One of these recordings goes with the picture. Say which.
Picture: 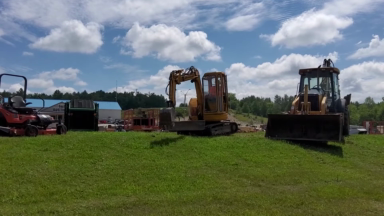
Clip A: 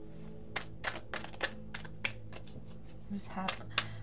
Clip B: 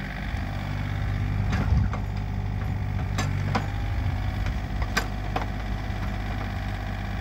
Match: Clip B